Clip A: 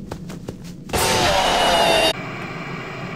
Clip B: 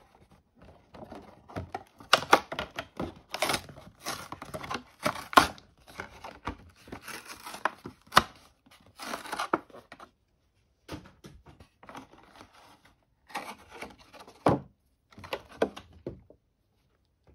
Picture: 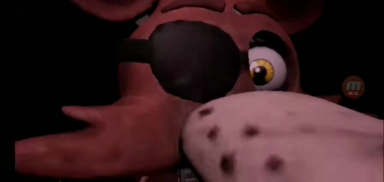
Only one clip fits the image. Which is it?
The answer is A